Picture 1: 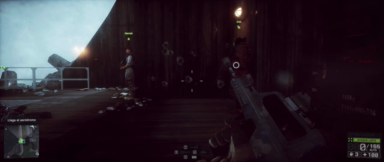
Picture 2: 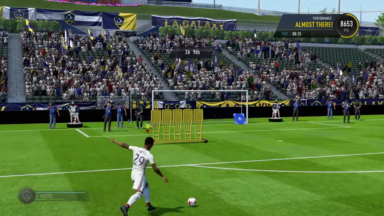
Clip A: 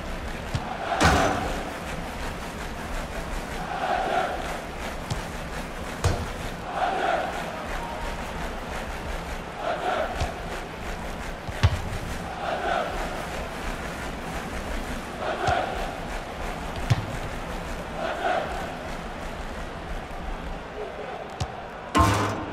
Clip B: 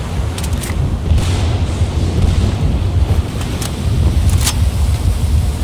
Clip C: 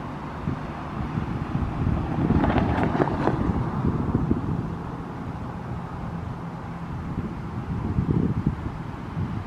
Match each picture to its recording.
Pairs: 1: B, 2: A